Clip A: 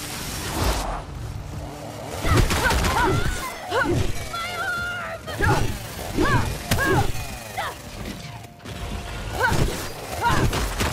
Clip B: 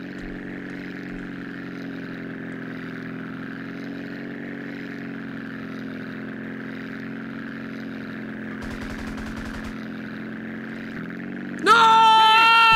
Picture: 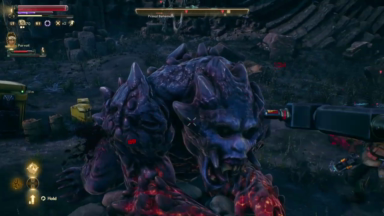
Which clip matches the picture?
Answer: A